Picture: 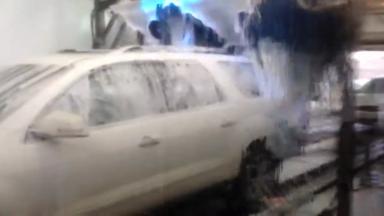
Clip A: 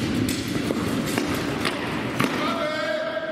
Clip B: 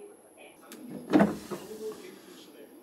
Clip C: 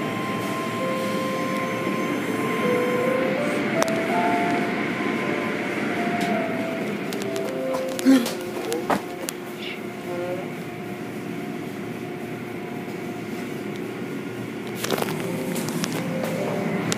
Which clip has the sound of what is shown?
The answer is C